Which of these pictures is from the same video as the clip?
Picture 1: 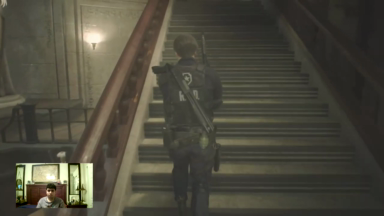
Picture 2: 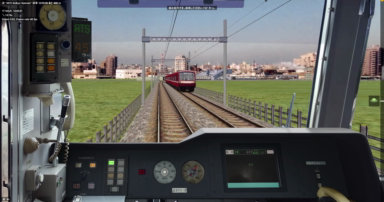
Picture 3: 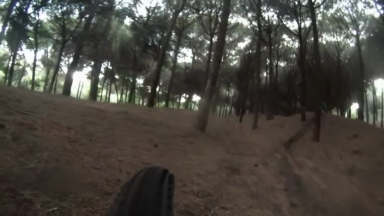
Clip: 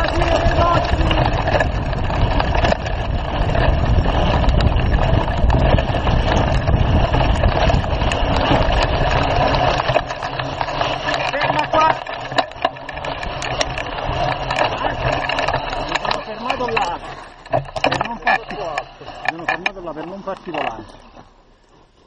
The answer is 3